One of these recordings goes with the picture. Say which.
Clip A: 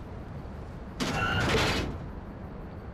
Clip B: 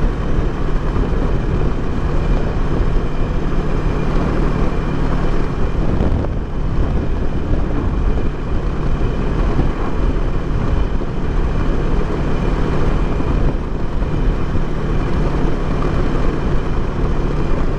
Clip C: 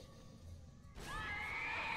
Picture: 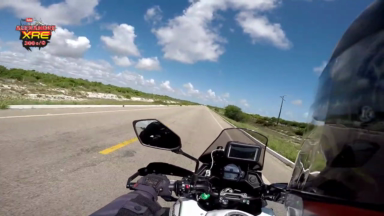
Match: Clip B